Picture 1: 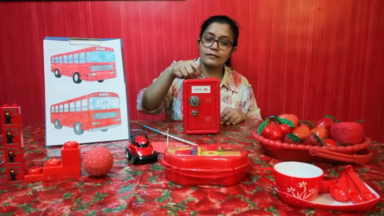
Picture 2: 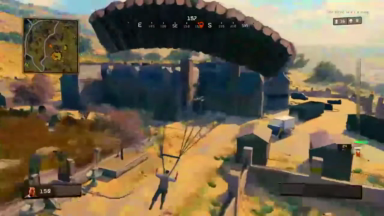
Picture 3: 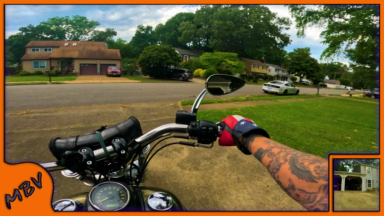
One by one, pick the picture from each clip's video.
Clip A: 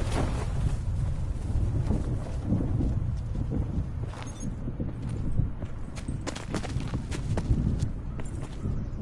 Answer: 2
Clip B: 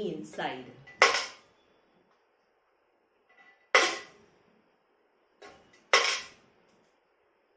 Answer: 1